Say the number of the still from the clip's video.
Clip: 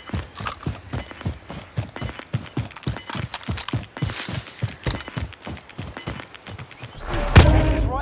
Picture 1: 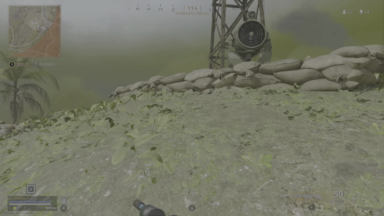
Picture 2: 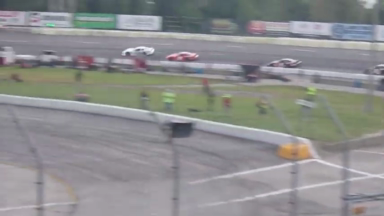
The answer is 1